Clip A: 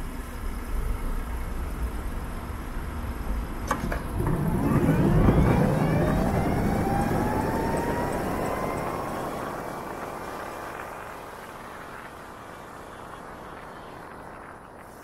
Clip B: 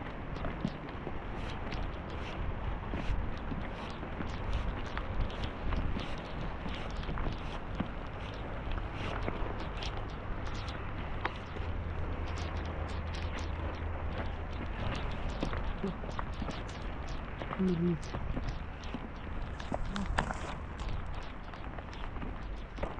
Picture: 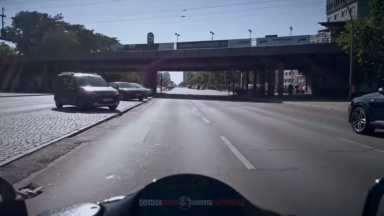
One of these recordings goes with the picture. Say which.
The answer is A